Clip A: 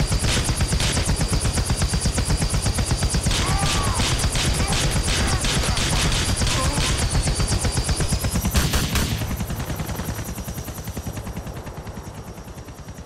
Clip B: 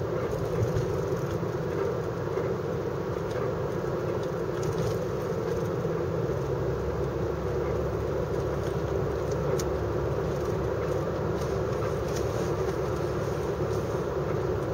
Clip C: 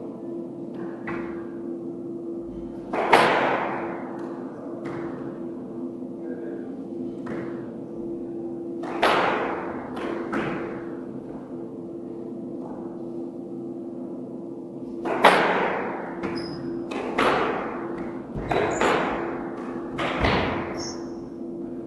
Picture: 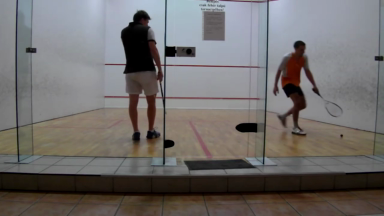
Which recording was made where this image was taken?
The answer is C